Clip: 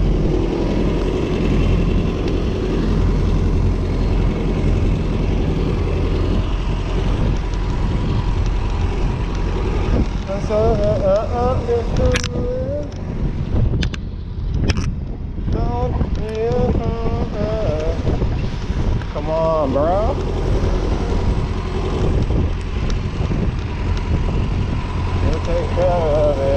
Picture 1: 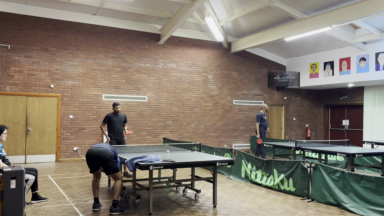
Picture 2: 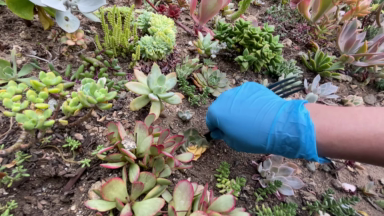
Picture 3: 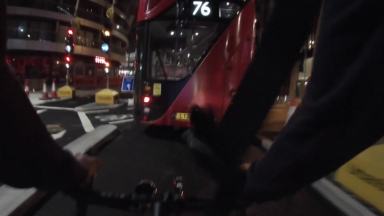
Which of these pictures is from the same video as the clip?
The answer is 3